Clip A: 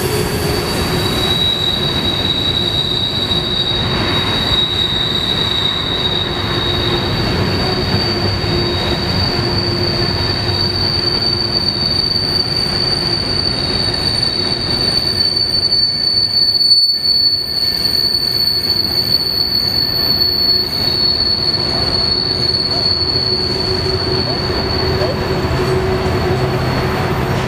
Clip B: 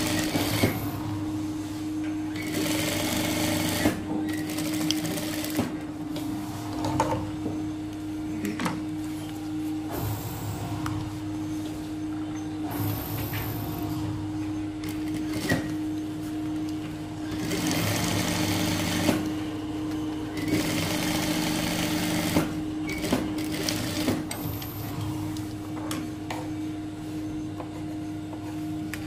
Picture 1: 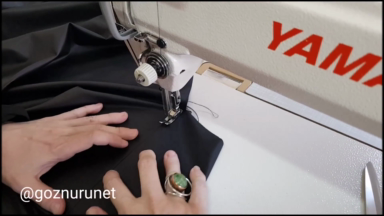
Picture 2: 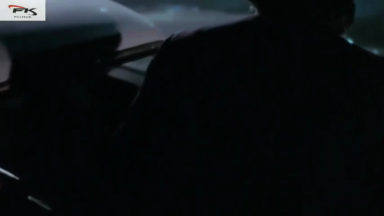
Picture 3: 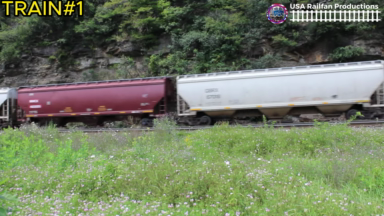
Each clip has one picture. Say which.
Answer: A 3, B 1